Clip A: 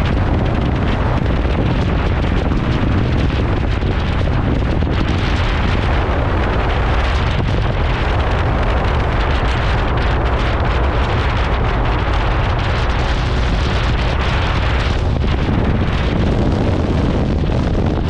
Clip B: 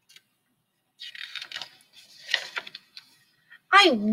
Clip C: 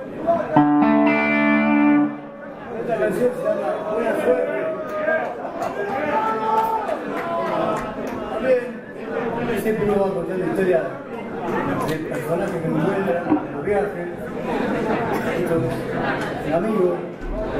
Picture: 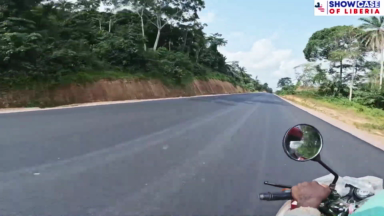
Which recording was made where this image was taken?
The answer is A